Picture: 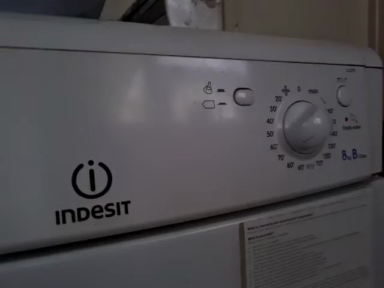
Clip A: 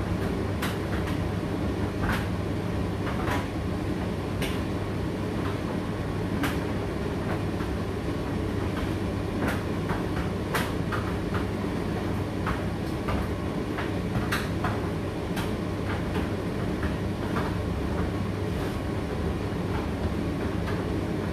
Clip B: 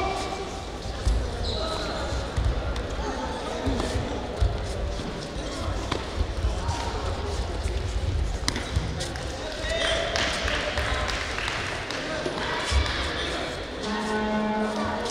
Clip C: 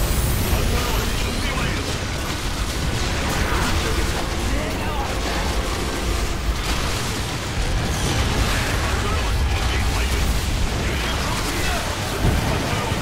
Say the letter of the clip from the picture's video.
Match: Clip A